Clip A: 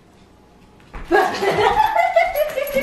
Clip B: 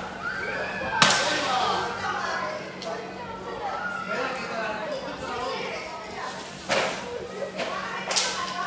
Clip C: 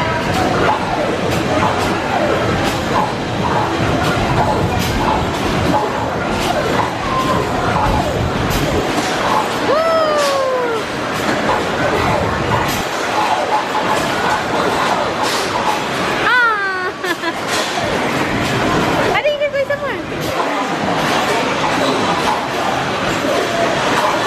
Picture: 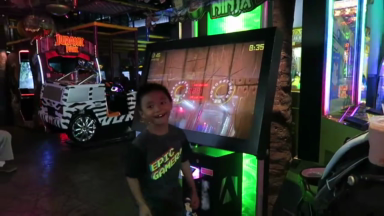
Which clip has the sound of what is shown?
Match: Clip C